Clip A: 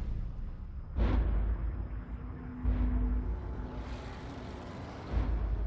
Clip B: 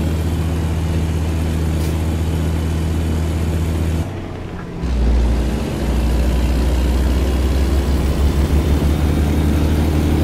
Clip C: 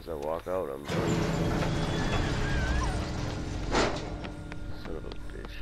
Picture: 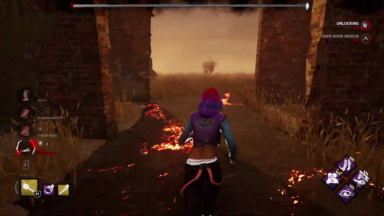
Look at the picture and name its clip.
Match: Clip C